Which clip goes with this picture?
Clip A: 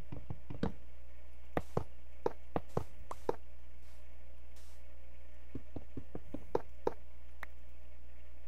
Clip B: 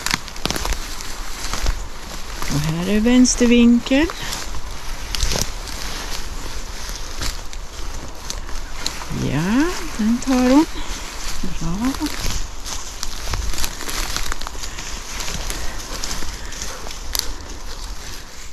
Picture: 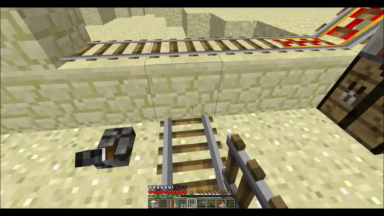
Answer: A